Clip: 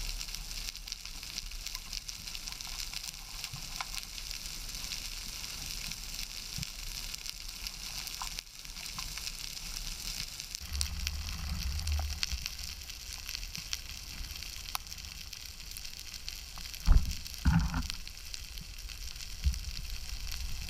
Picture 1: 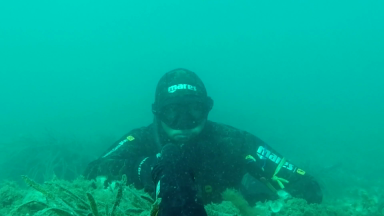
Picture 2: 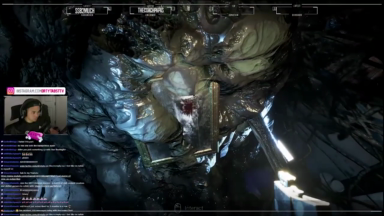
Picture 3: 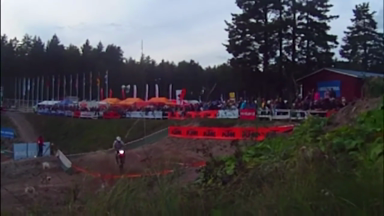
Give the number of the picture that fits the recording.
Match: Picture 1